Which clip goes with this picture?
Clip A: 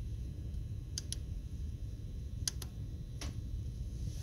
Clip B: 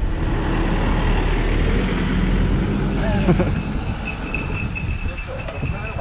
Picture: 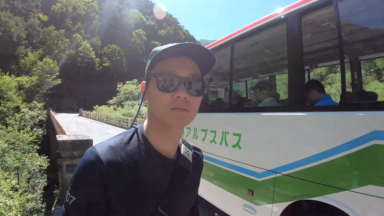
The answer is B